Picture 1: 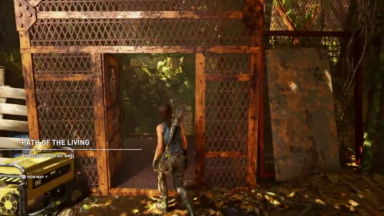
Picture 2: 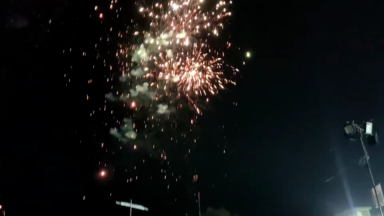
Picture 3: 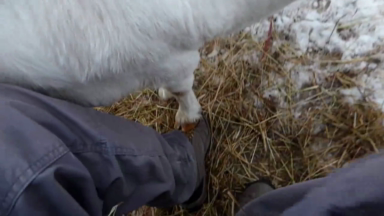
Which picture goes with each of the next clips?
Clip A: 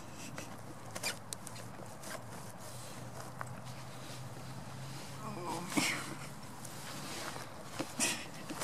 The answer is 3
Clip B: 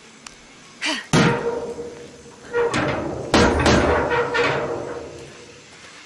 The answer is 1